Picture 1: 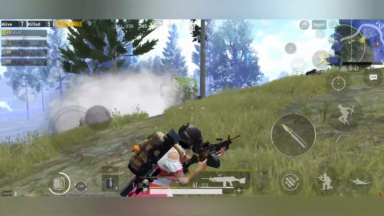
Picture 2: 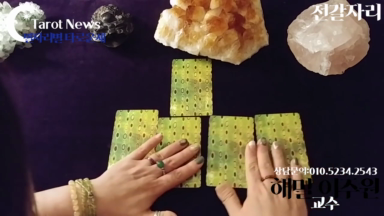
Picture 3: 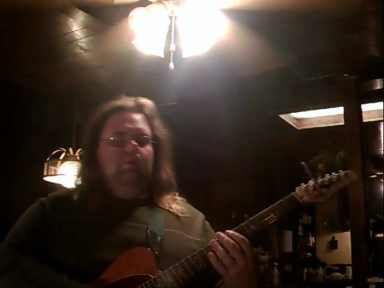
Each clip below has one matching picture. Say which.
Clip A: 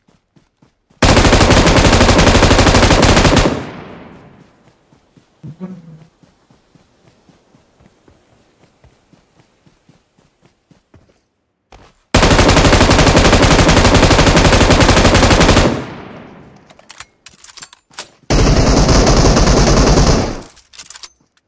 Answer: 1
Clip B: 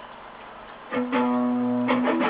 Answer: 3